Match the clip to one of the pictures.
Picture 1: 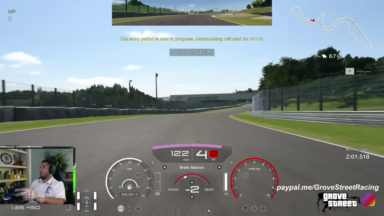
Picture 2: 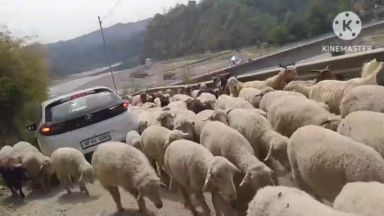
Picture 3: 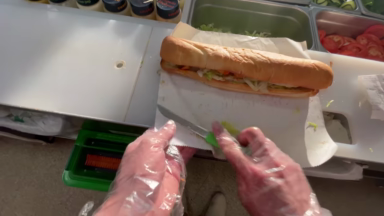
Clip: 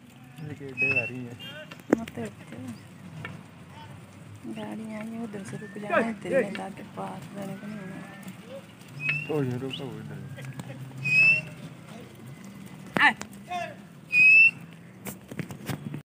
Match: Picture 2